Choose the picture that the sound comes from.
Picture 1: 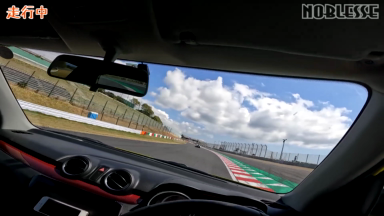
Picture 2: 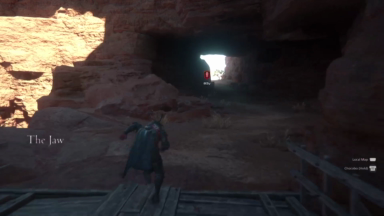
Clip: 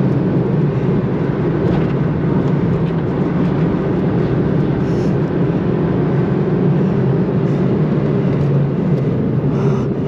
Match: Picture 1